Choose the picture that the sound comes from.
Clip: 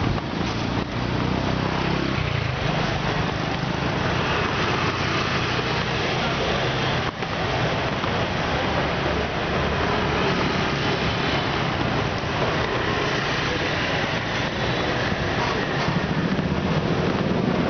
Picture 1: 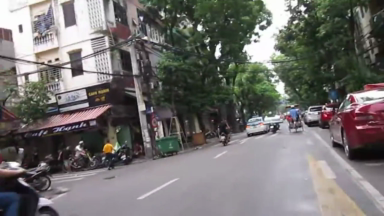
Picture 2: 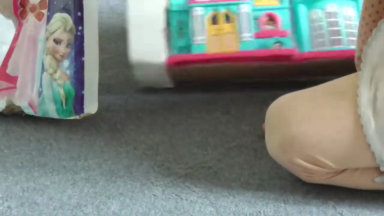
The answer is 1